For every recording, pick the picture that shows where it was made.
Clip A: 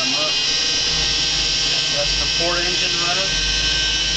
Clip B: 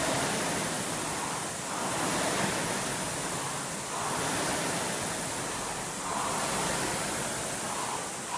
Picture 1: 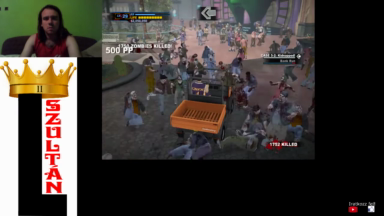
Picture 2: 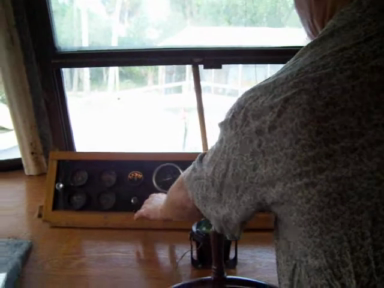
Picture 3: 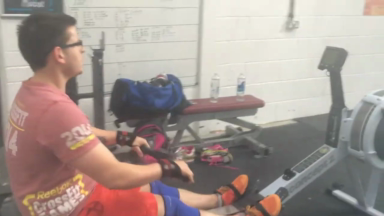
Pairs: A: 2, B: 3